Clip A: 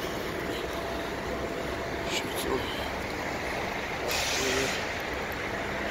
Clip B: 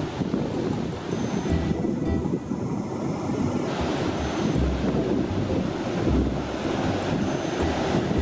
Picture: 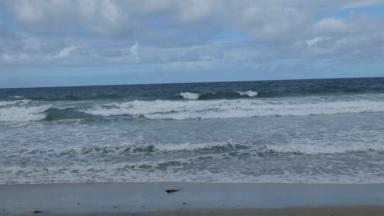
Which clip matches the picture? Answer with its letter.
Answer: B